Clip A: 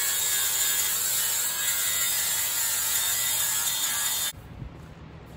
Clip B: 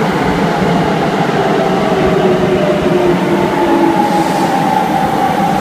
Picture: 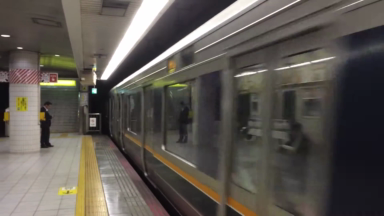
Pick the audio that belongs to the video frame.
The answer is B